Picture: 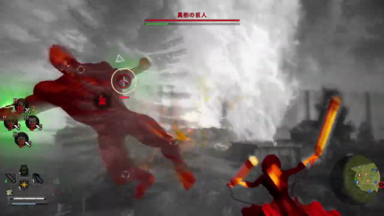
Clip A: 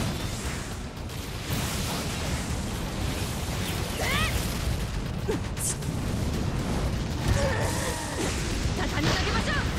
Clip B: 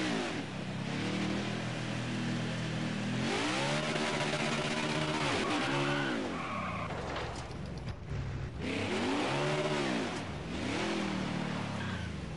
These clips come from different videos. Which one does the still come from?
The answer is A